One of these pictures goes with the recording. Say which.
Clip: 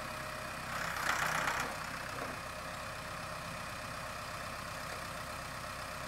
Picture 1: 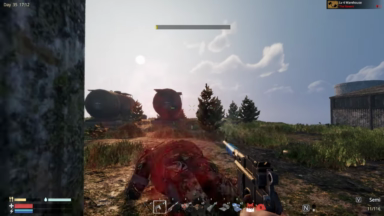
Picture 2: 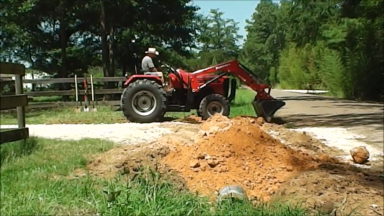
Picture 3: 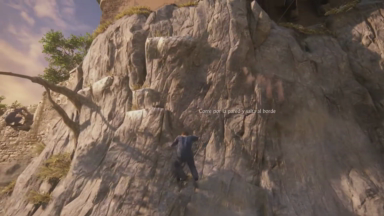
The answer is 2